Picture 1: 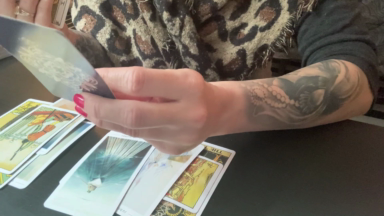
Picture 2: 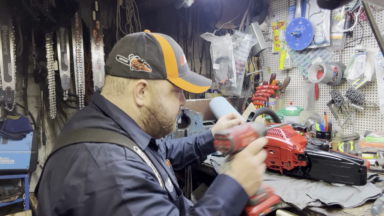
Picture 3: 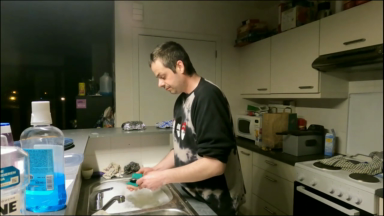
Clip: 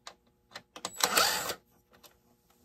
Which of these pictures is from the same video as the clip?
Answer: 2